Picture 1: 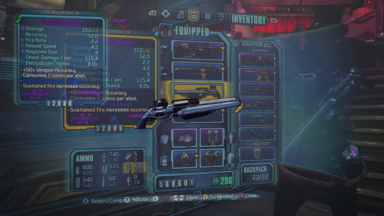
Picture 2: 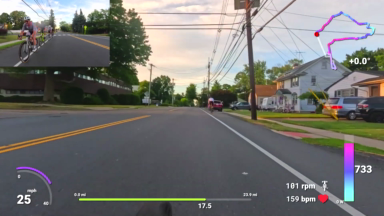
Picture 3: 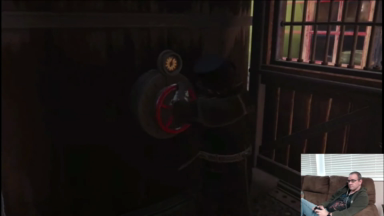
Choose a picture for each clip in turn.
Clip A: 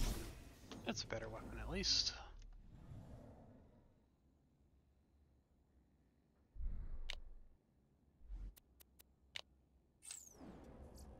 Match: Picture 1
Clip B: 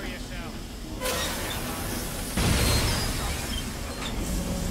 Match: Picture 3